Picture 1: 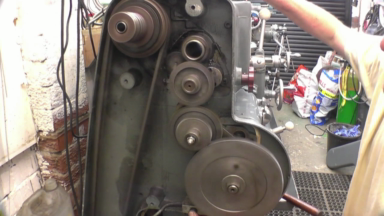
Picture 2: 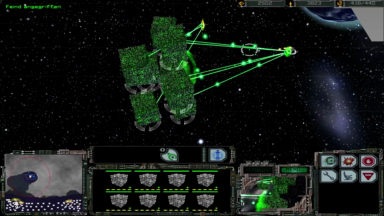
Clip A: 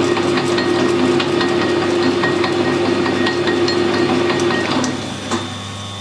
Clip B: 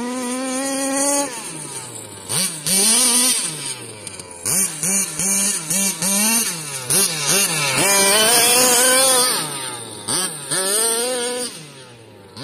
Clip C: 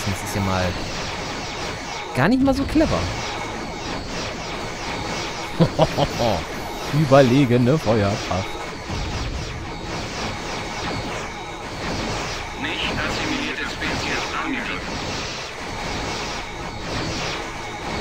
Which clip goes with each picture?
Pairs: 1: A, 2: C